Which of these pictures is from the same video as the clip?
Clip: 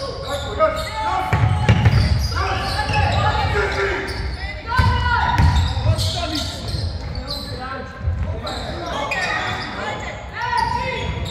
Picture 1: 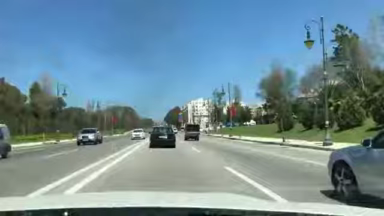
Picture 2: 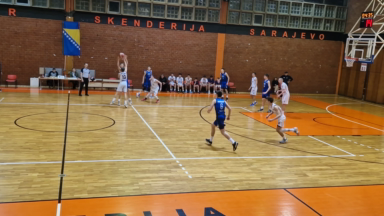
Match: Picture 2